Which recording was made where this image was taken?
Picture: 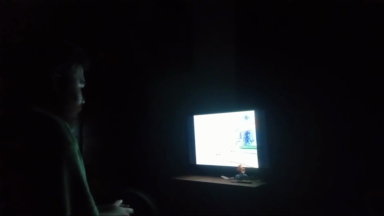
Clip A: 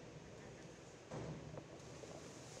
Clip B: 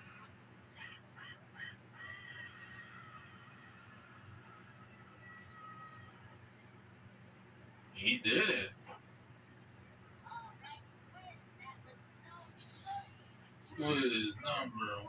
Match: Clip B